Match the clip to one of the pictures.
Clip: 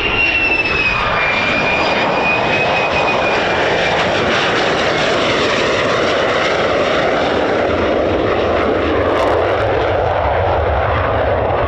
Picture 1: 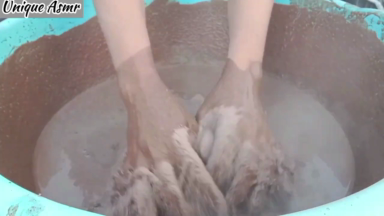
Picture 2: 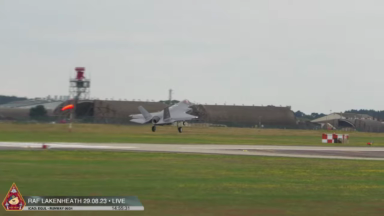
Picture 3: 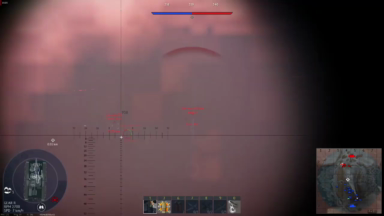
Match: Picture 2